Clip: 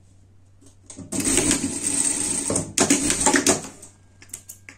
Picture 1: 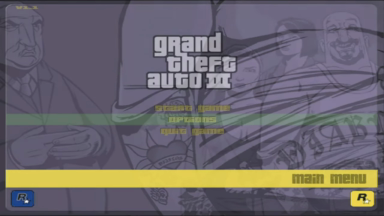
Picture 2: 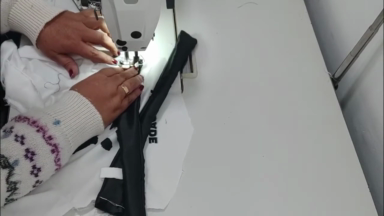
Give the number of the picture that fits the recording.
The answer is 2